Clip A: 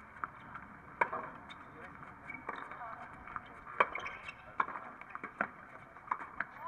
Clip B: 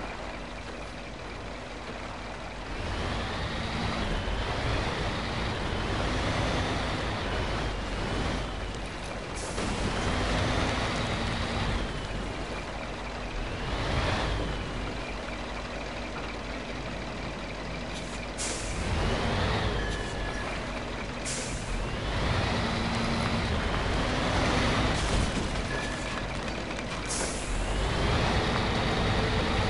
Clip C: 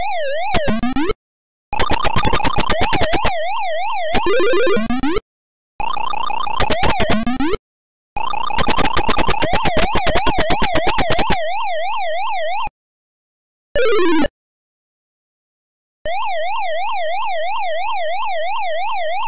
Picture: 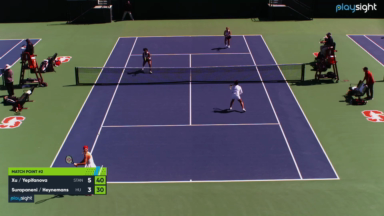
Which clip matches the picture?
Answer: A